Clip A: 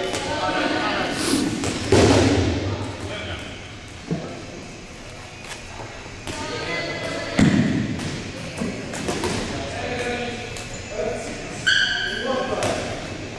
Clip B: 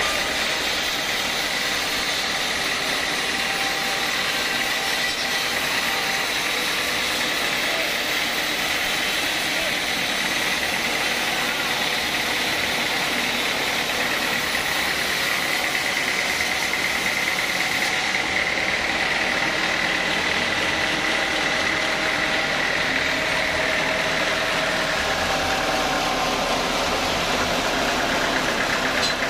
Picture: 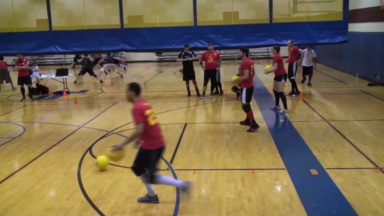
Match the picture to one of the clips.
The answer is A